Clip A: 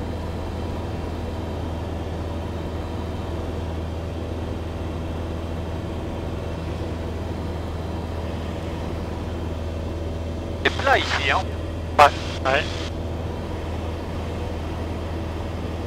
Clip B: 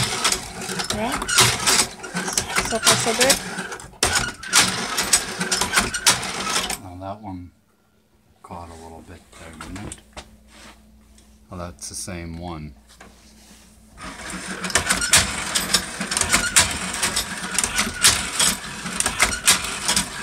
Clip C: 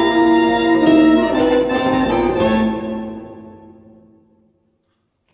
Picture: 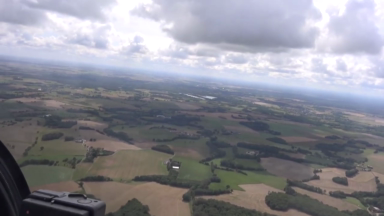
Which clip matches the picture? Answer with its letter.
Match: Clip A